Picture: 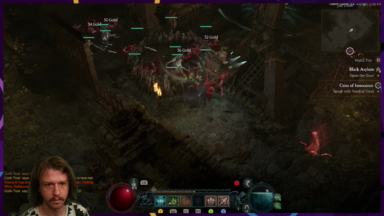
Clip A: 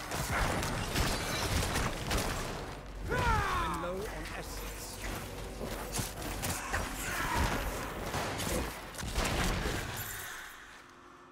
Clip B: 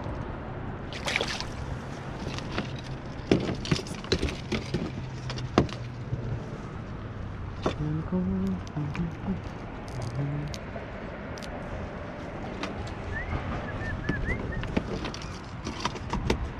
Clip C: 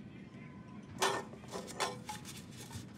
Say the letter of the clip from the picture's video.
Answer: A